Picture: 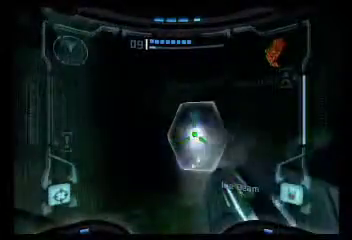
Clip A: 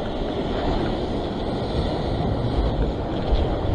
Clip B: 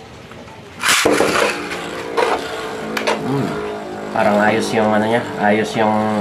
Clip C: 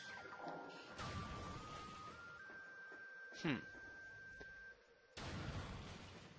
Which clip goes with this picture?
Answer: C